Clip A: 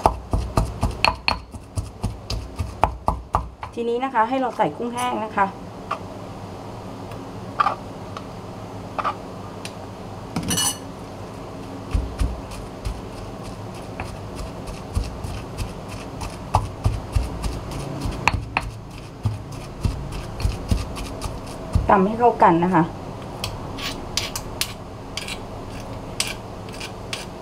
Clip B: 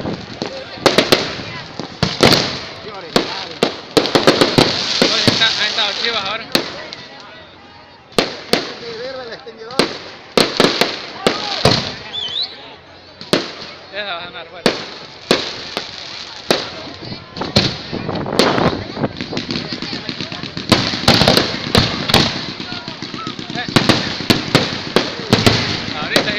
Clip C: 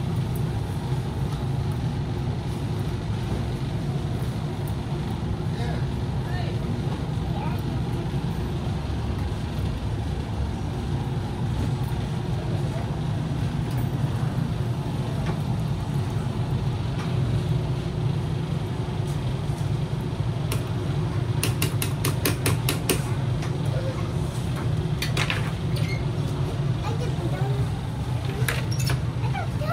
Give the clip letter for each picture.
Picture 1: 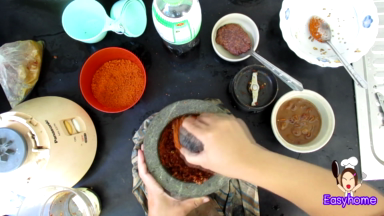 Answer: A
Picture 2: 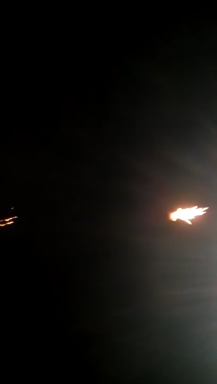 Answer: B